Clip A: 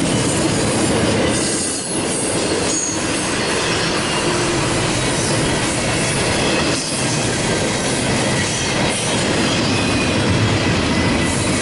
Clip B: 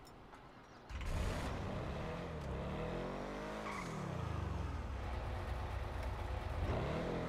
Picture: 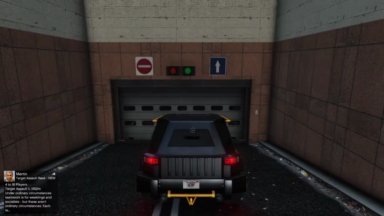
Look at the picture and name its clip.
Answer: B